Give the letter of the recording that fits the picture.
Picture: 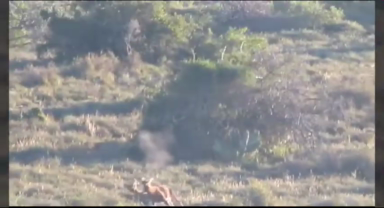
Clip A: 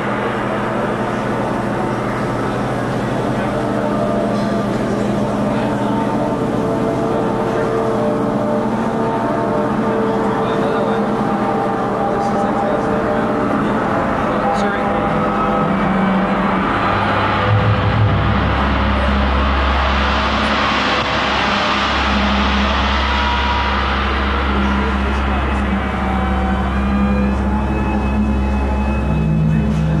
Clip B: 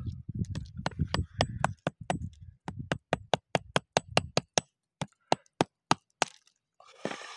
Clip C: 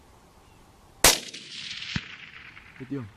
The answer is C